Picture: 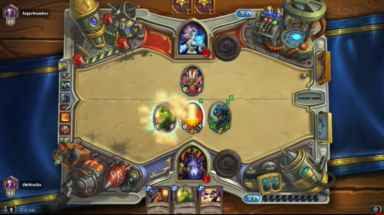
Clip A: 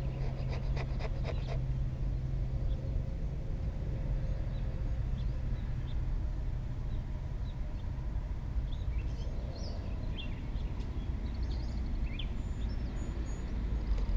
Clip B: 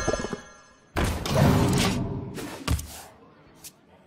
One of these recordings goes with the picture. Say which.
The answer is B